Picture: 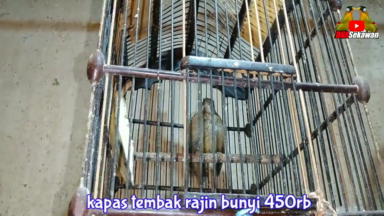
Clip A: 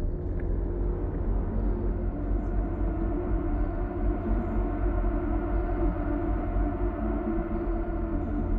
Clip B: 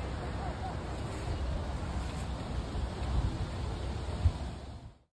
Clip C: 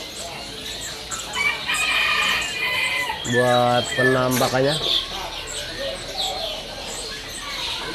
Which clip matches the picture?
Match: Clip C